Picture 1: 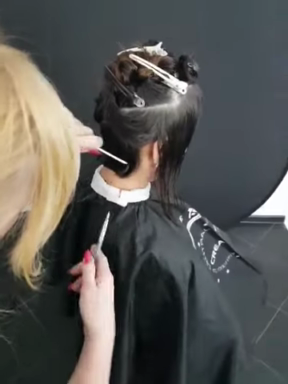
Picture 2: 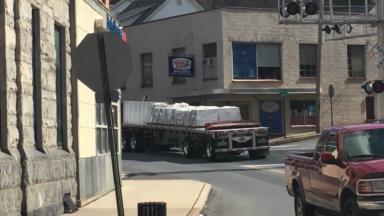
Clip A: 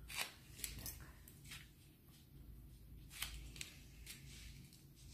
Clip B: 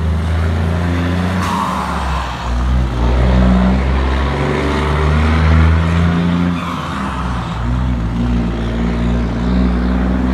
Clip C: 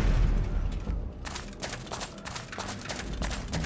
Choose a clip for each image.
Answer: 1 A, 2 B